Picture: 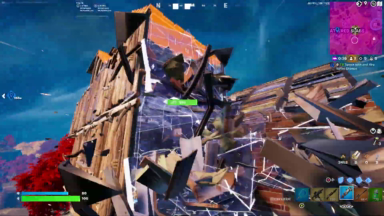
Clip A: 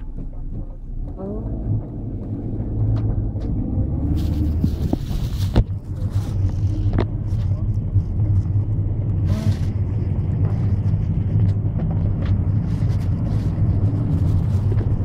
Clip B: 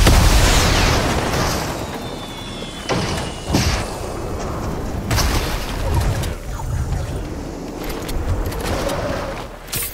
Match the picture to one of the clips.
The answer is B